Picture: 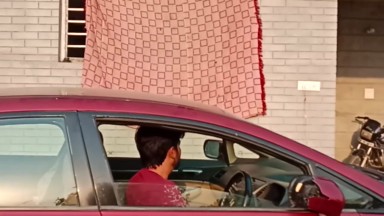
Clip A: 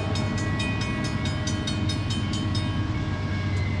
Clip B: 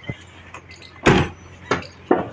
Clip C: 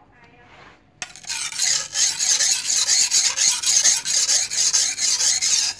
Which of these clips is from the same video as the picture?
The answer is B